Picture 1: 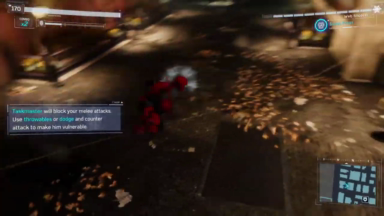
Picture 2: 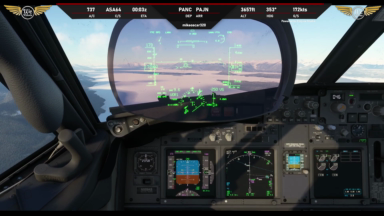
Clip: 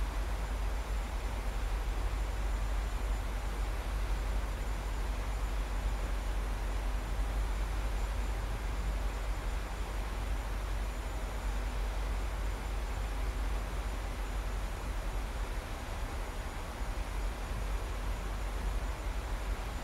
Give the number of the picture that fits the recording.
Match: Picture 2